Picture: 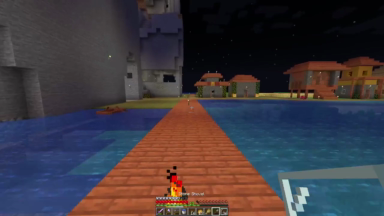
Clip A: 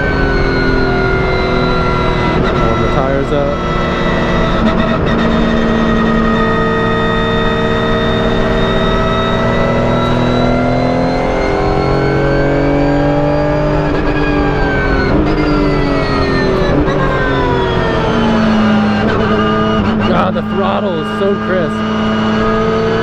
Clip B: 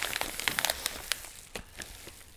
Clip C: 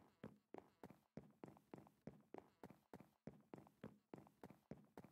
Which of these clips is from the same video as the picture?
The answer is C